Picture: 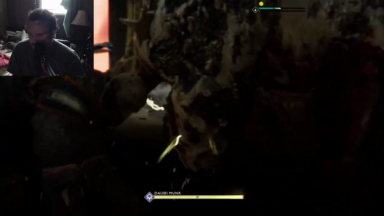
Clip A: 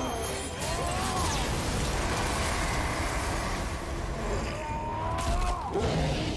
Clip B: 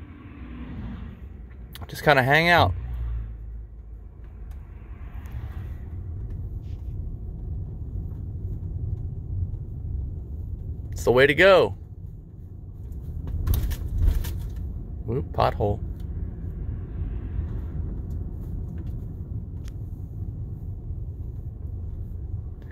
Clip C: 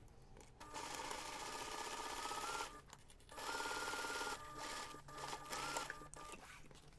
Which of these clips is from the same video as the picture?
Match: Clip A